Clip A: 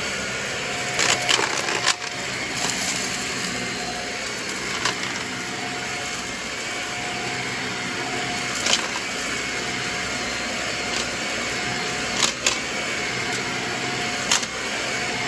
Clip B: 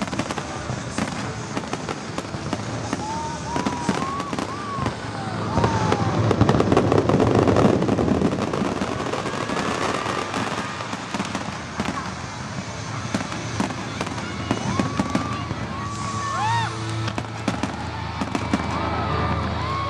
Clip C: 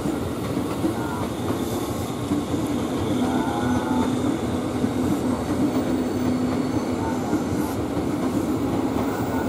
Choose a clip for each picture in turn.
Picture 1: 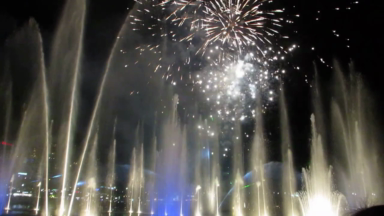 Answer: B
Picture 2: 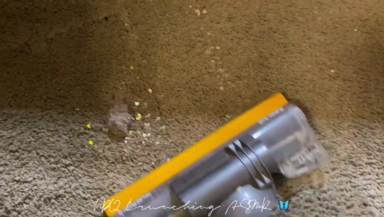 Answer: A